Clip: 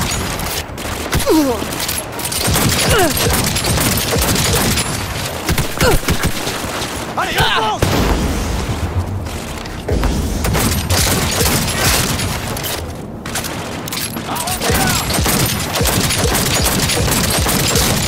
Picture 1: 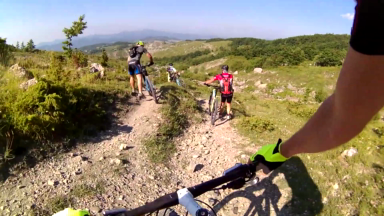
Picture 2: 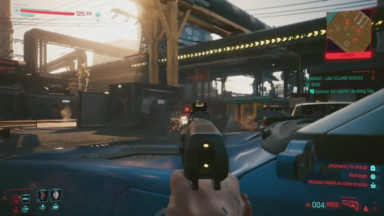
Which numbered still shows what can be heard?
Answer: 2